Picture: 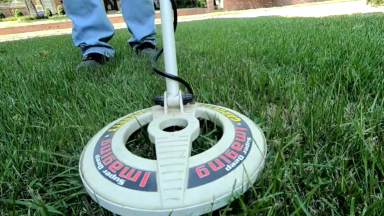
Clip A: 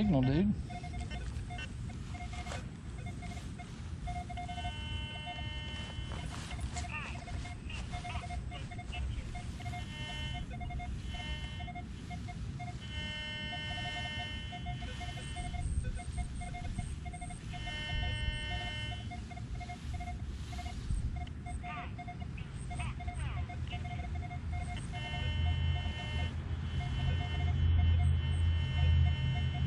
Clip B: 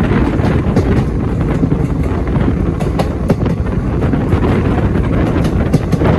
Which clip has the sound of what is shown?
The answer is A